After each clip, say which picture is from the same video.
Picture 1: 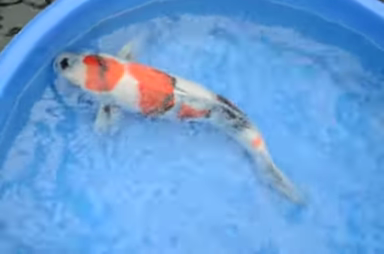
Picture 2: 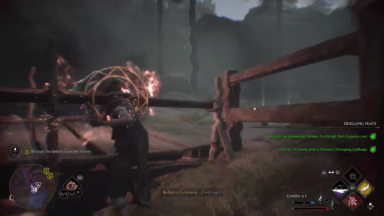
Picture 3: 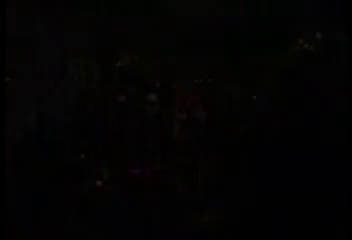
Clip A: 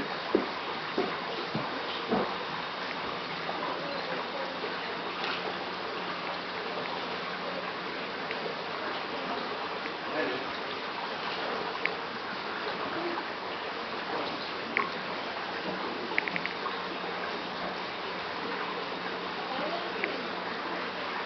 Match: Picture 1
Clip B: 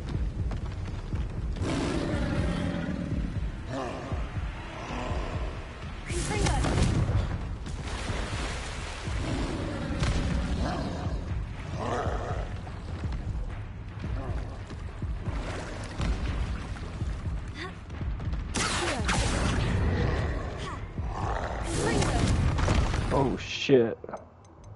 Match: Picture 2